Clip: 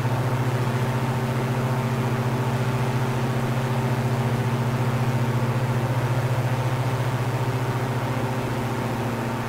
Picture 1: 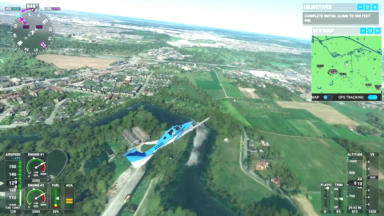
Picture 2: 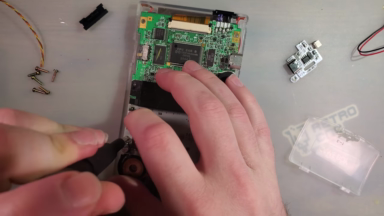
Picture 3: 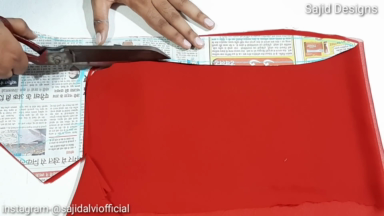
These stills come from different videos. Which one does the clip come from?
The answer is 1